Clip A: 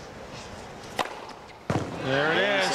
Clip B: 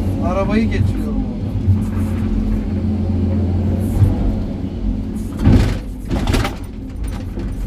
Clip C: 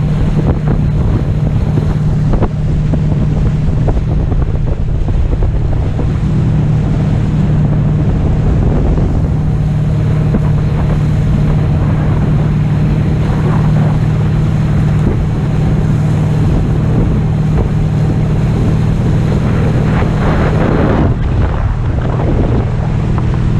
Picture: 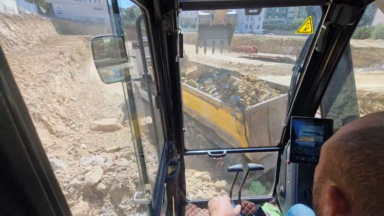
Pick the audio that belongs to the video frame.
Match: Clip B